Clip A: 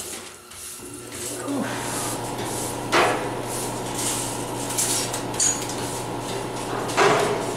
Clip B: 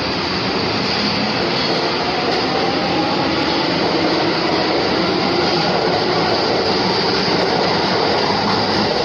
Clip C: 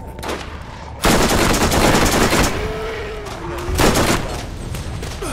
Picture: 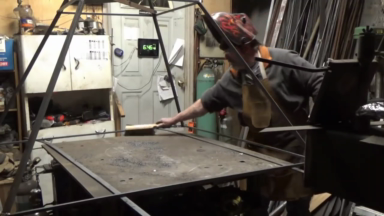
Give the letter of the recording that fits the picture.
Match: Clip A